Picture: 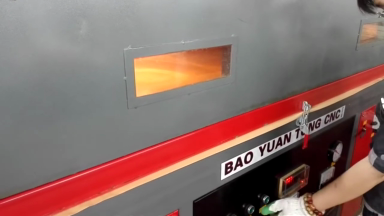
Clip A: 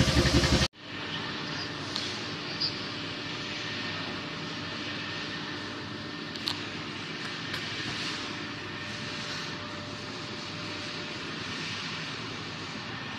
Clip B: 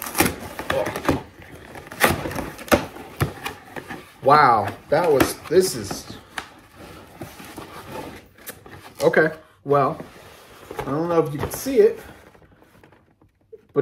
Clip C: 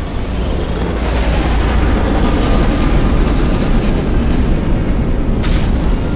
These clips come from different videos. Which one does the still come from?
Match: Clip A